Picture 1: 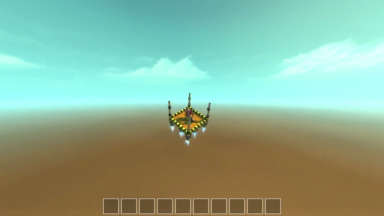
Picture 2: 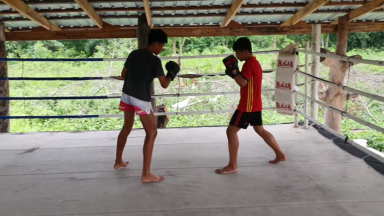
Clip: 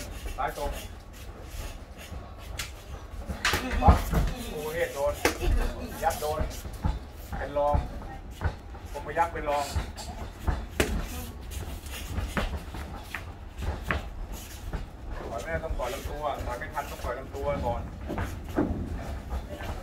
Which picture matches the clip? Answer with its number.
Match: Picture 2